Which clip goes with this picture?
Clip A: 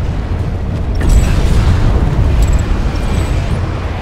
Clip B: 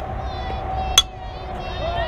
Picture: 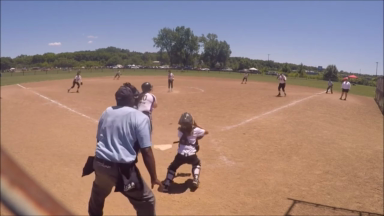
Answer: B